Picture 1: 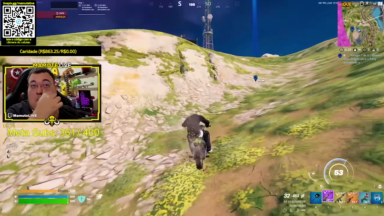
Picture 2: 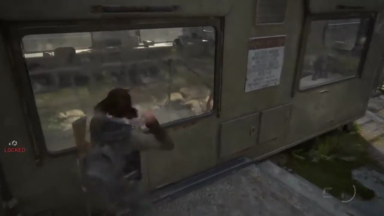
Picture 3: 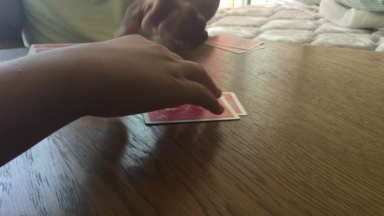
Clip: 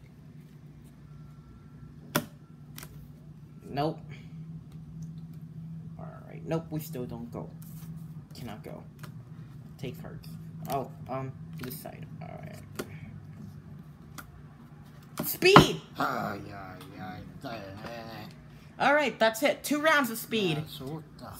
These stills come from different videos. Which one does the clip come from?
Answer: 3